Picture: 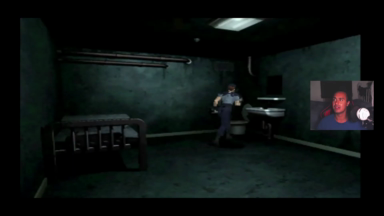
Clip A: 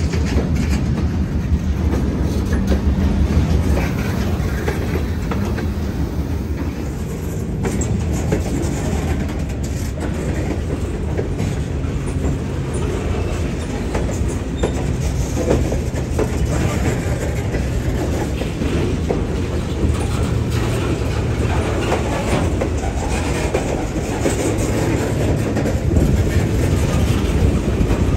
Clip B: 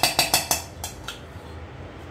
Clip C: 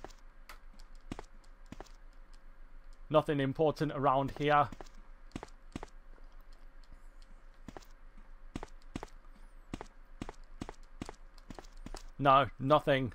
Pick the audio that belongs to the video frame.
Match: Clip C